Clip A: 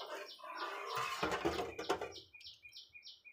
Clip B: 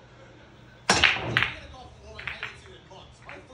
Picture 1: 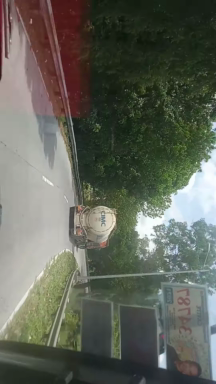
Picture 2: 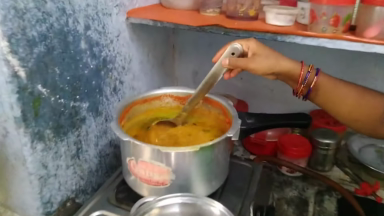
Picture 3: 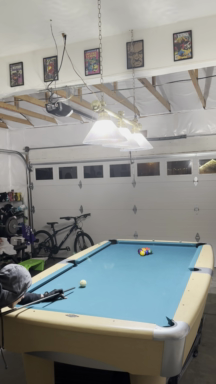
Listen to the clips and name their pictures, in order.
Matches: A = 2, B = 3